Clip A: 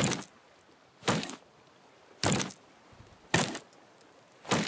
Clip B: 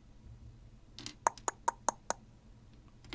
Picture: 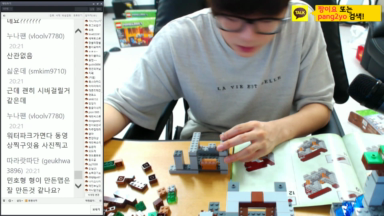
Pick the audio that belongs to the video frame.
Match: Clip B